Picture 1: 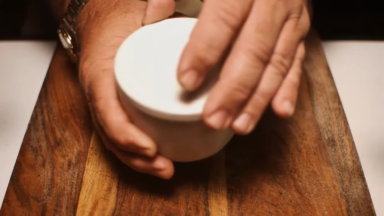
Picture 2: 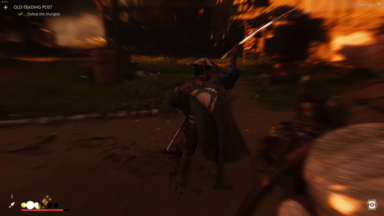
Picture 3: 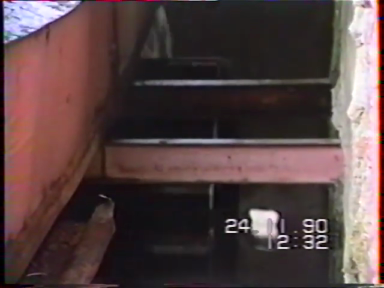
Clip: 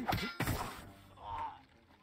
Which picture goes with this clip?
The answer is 2